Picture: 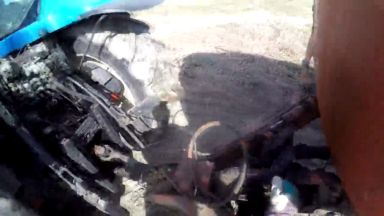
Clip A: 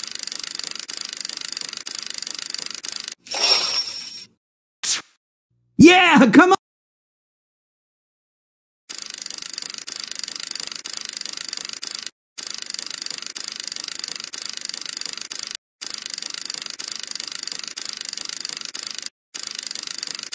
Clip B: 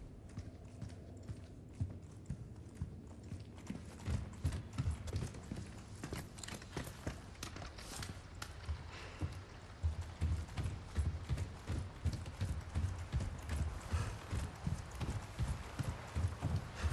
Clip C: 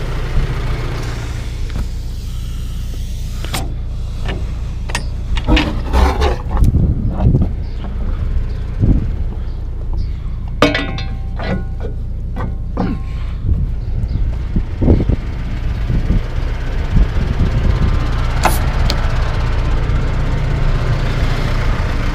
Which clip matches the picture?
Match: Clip C